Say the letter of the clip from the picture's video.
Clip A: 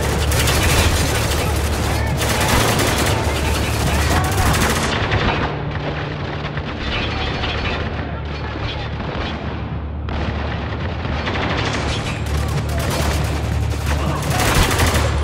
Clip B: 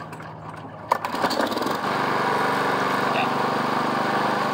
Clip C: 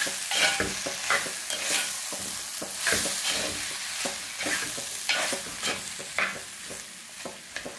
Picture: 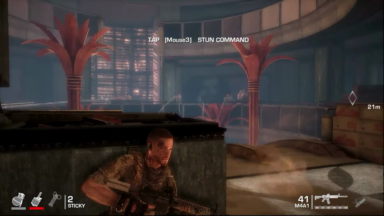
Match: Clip A